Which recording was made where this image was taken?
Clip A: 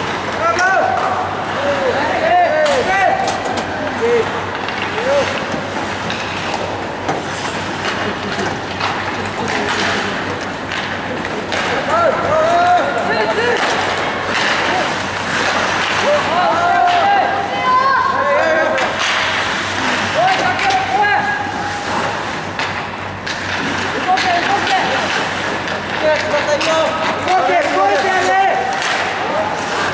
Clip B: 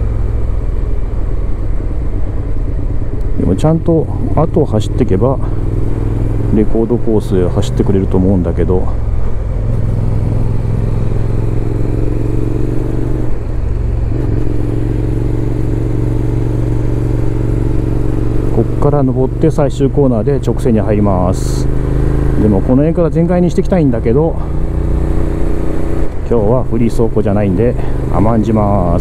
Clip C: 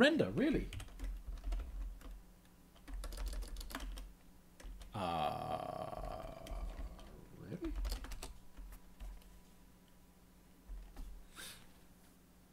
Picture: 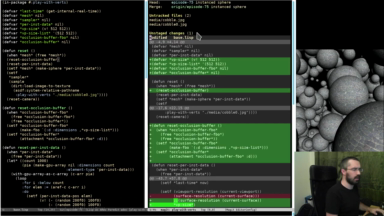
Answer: C